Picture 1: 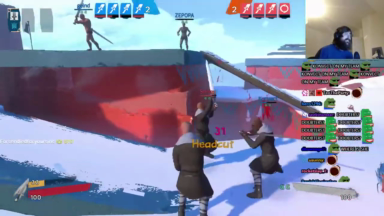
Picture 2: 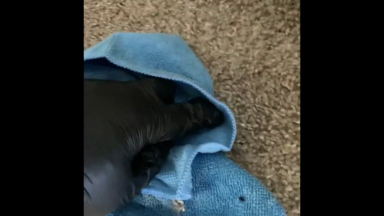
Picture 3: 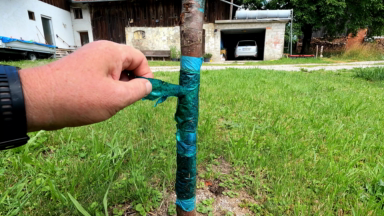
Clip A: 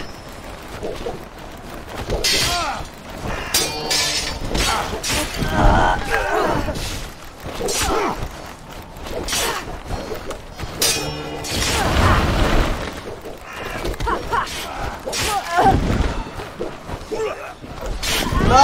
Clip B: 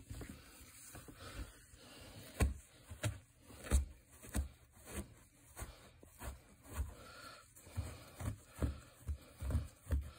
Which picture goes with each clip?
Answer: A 1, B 2